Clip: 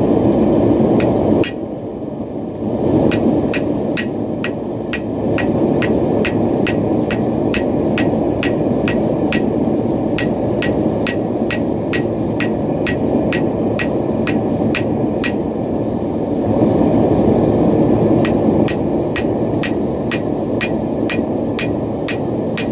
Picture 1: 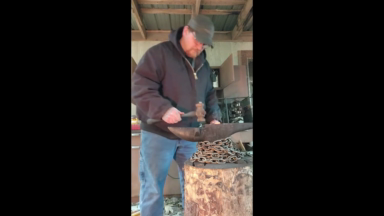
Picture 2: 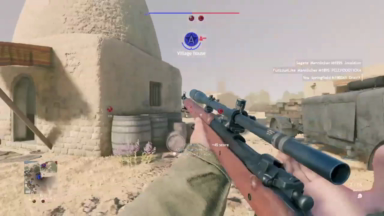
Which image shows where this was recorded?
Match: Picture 1